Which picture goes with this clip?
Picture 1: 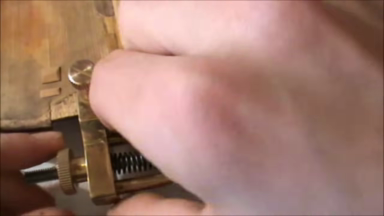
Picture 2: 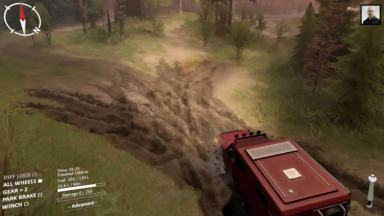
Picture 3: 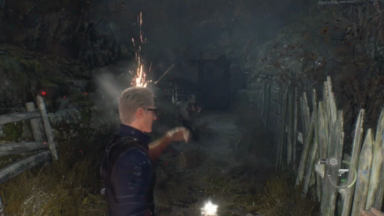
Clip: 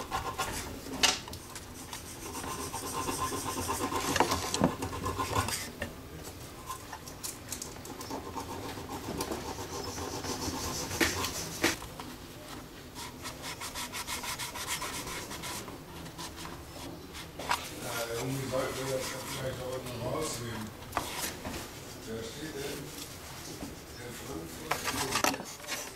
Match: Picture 1